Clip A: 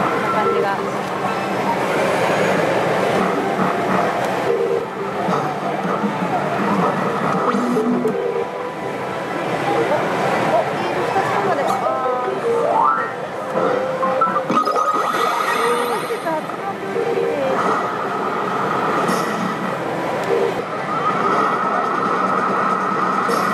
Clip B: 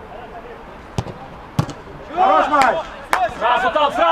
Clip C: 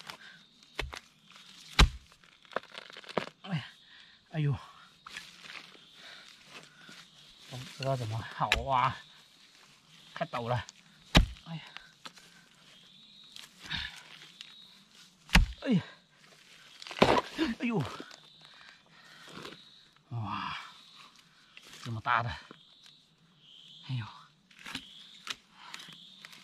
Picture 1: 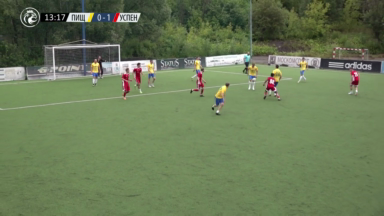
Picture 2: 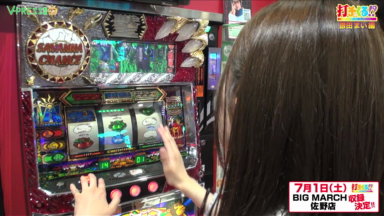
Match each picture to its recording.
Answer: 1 B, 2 A